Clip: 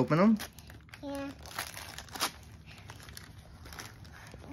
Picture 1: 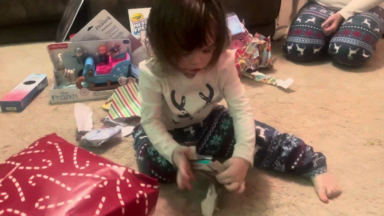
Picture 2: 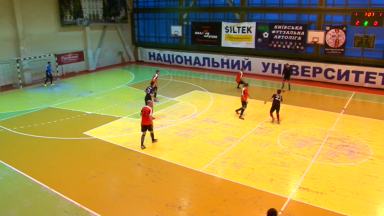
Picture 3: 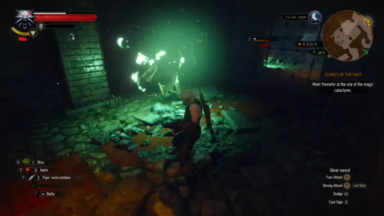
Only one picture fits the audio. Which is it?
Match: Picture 1